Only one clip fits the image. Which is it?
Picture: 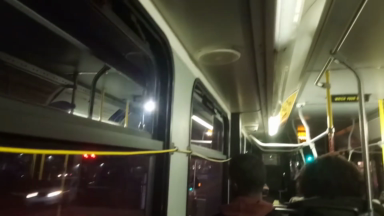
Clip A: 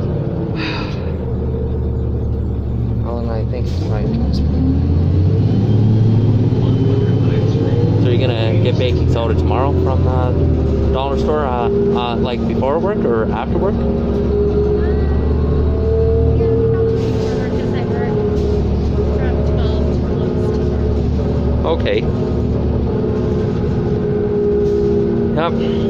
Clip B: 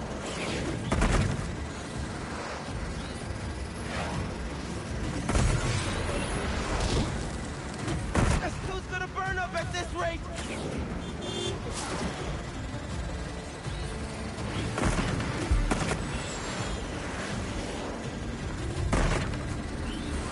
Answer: A